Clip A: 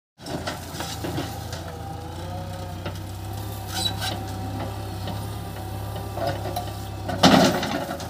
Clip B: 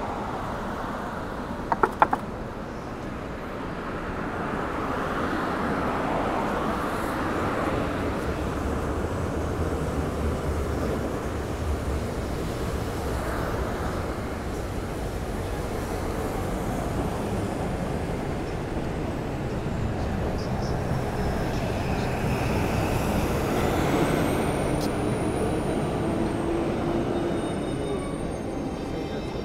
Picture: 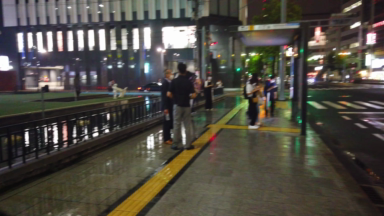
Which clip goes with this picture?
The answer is B